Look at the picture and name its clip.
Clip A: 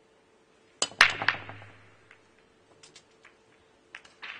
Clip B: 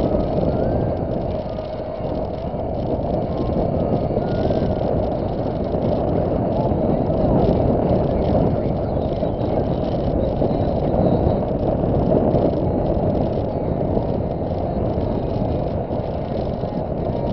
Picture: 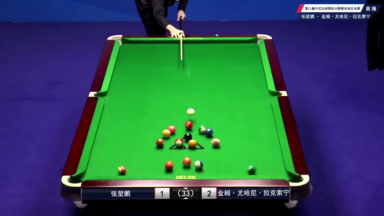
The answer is A